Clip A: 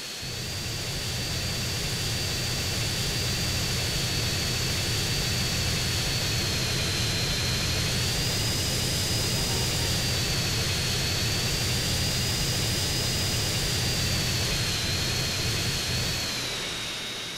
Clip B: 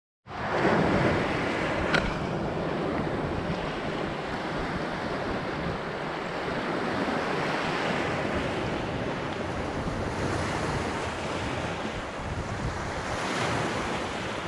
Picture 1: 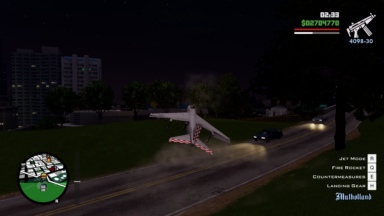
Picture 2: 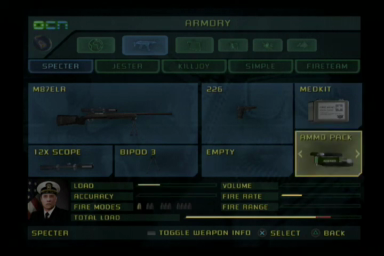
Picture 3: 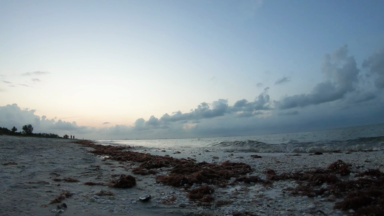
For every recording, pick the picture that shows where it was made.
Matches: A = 1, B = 3